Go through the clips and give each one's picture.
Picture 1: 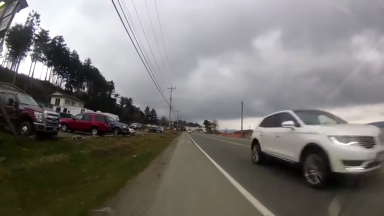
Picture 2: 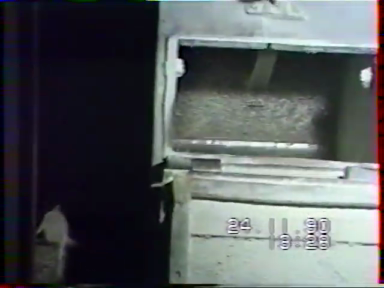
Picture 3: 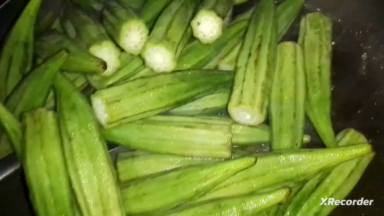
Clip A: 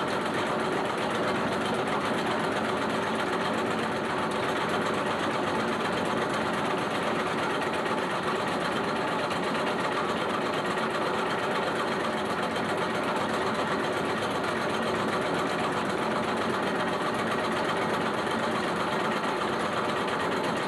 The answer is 2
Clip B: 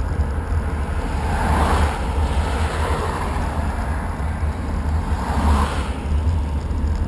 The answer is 1